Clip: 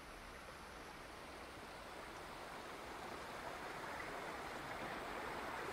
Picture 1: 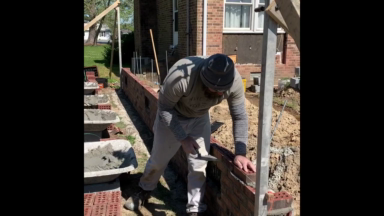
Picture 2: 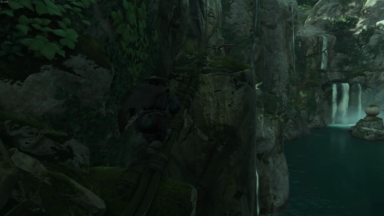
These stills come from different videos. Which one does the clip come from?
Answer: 2